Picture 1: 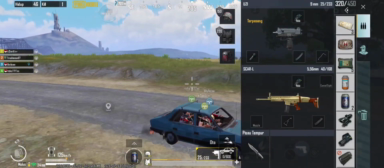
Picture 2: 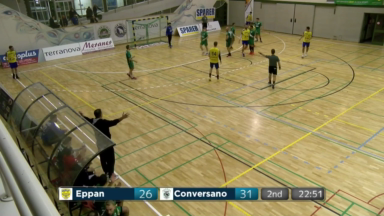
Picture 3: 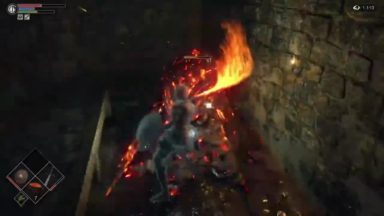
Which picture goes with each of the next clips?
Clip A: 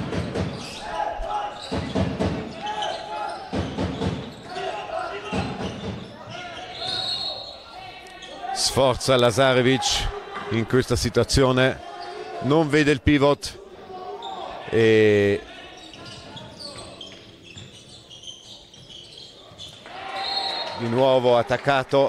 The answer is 2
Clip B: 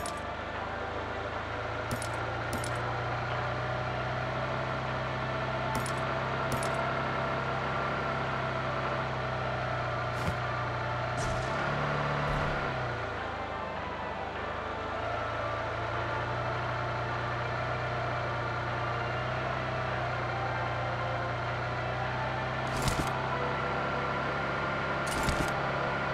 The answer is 1